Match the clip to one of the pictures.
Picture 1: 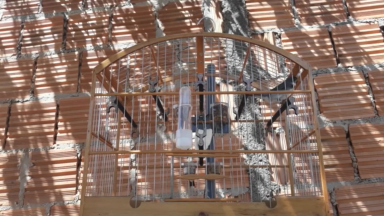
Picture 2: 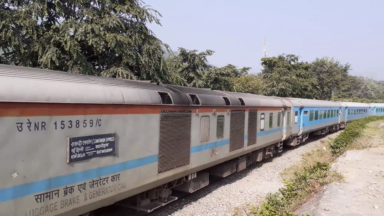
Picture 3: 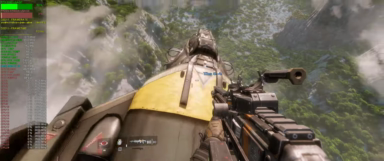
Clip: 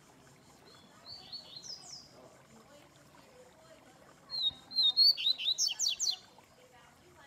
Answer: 1